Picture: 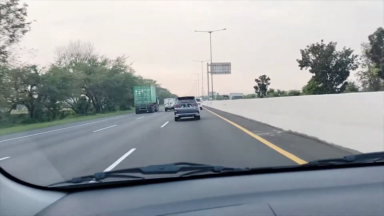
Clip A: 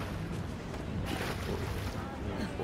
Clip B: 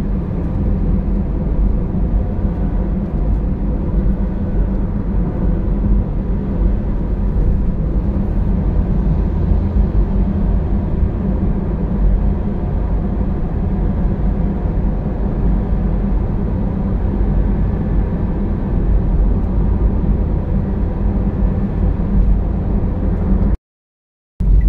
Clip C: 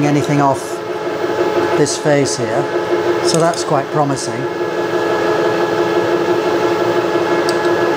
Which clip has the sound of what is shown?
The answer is B